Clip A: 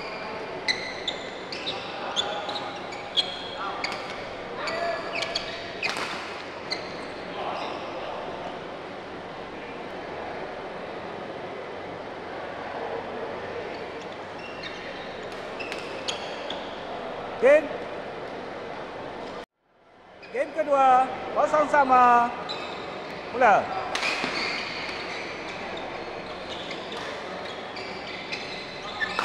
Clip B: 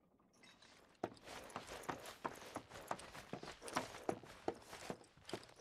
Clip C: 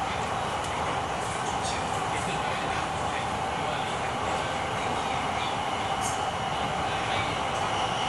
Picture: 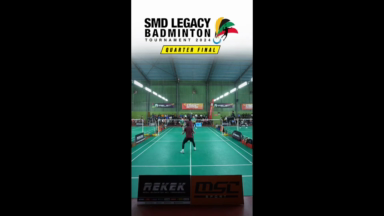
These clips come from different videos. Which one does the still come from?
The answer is A